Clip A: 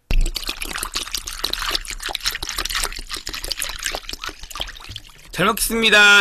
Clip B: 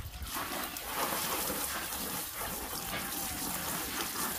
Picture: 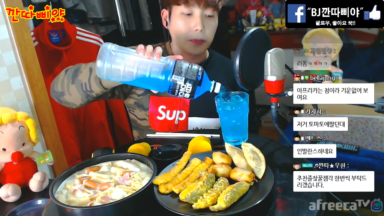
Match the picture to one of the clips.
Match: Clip A